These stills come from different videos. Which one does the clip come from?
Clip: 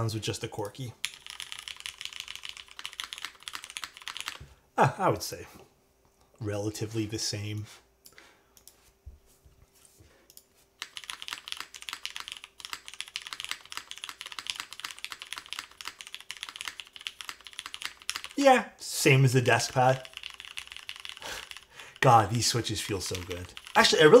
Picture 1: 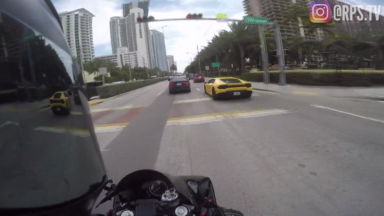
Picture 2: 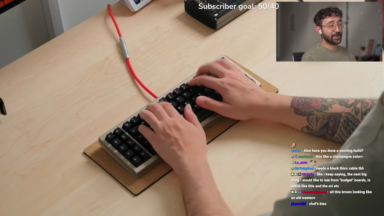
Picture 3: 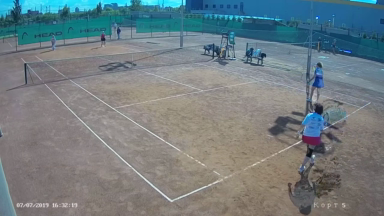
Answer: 2